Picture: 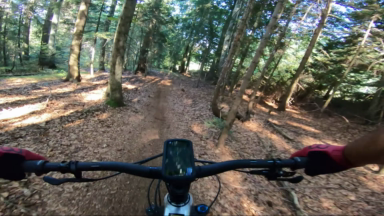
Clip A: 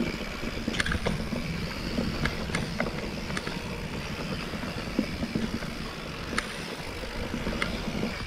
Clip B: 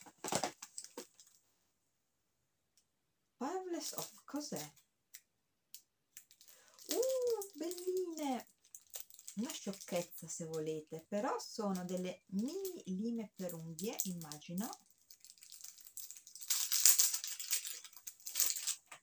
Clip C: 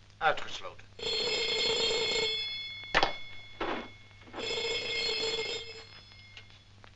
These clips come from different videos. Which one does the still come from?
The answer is A